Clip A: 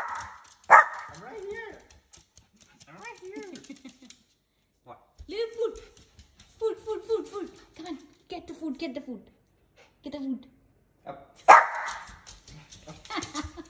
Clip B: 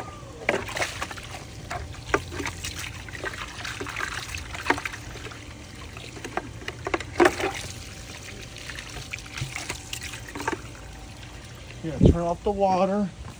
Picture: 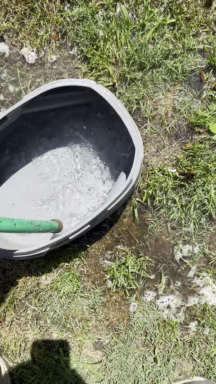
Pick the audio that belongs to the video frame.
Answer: B